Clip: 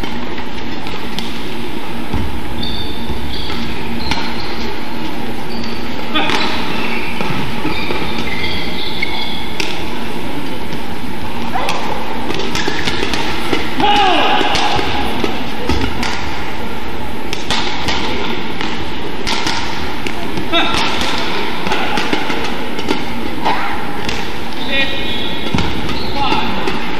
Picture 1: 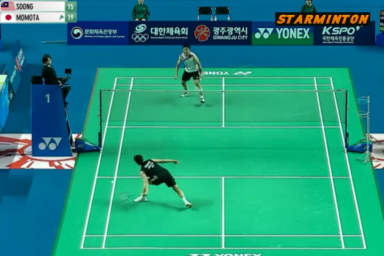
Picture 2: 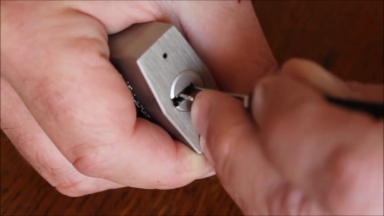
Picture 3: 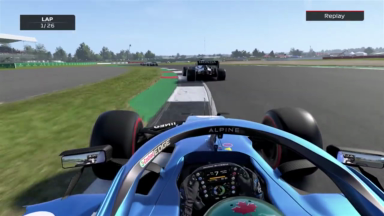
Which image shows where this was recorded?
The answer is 1